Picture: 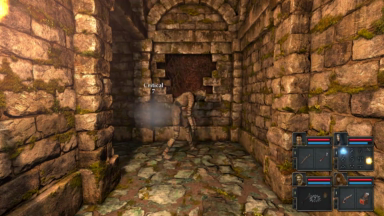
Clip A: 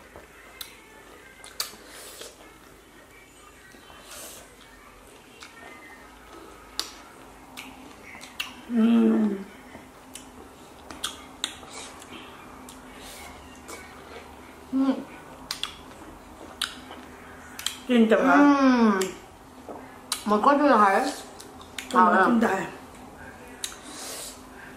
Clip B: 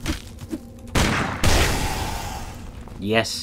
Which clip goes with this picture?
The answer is B